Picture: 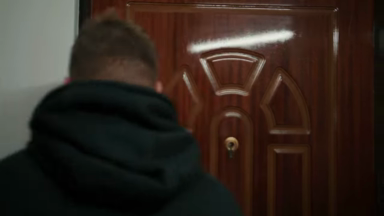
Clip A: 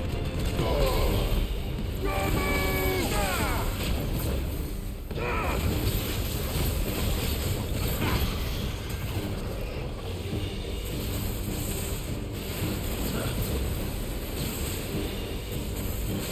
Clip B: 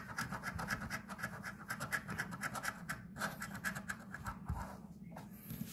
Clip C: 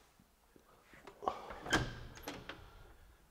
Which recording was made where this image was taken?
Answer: C